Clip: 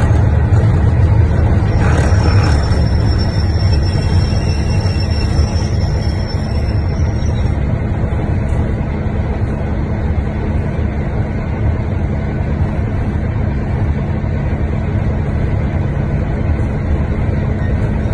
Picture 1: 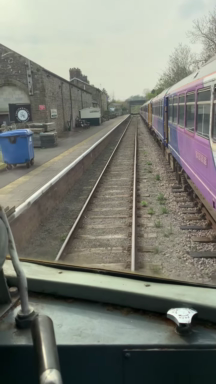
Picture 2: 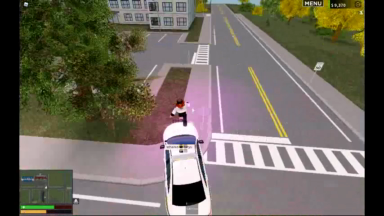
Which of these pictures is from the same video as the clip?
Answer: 1